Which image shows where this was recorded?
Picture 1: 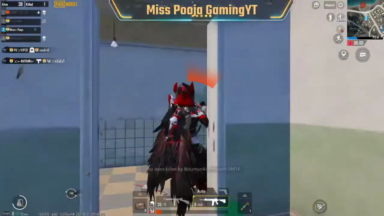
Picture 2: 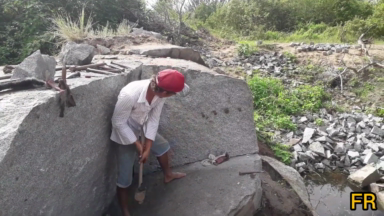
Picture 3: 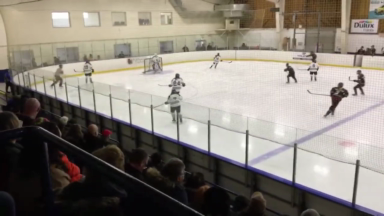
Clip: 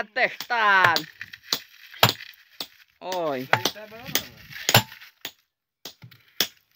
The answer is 2